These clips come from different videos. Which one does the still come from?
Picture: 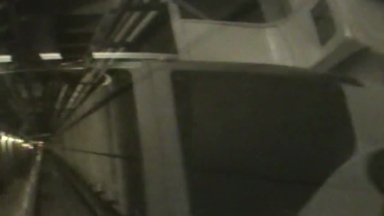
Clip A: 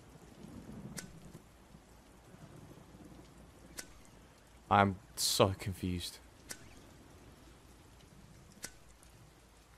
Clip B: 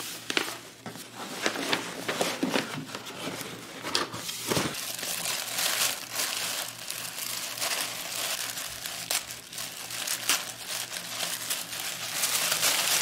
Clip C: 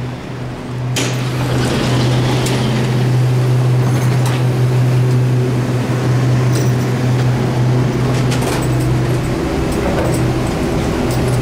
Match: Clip C